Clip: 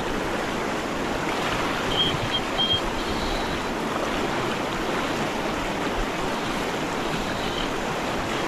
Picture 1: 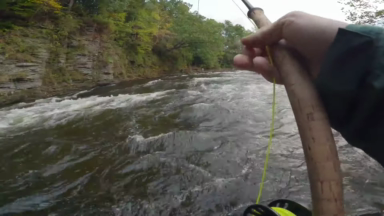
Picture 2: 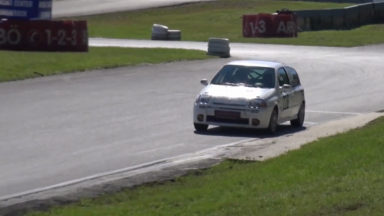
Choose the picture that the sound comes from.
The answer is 1